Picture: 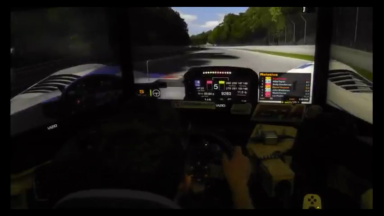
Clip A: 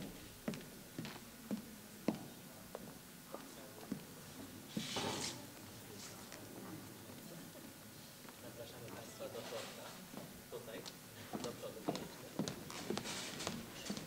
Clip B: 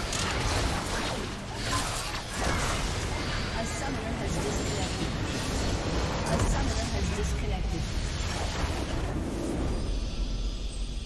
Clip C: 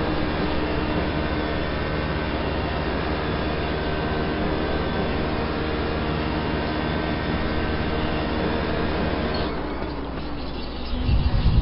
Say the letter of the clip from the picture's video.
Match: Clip C